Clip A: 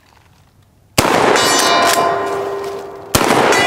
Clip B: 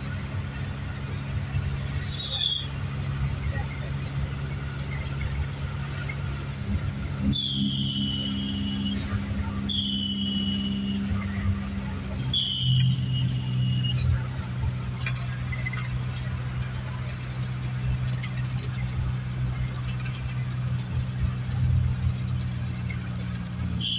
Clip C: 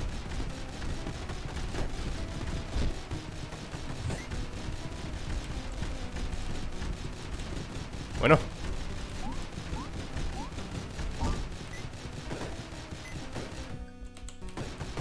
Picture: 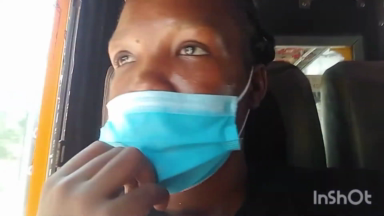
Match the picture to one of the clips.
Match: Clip B